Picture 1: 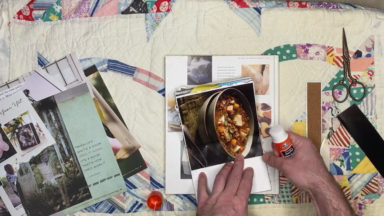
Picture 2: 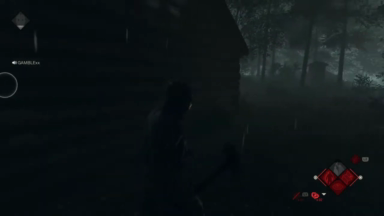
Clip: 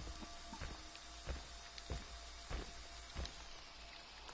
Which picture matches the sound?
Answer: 2